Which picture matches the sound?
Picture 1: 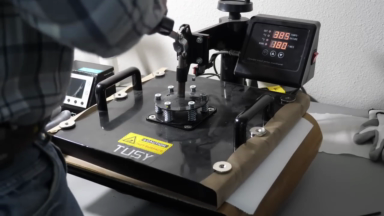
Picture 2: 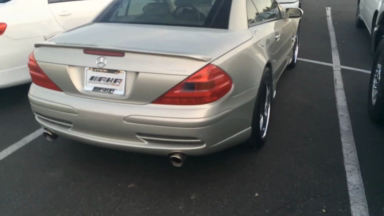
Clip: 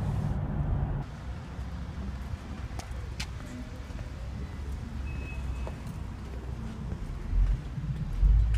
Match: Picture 2